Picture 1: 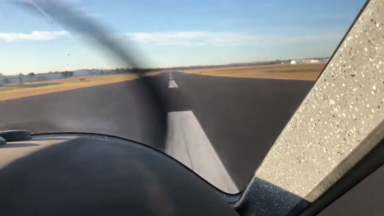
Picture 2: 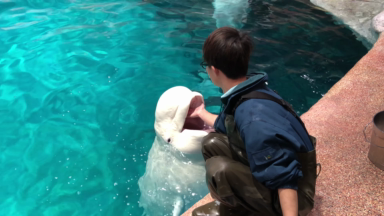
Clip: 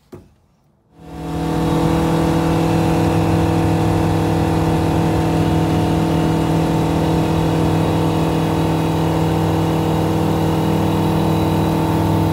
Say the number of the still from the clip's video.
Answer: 1